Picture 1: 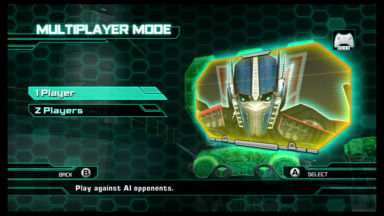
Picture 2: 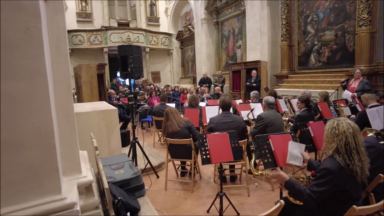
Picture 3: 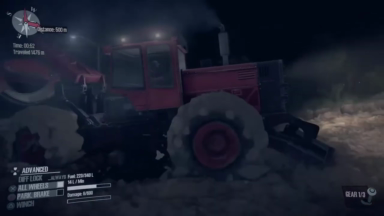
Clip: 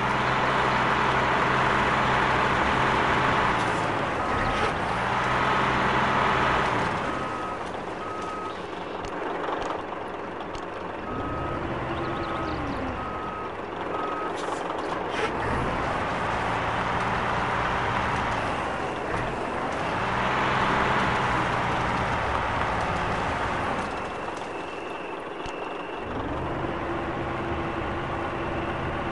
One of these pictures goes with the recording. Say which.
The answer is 3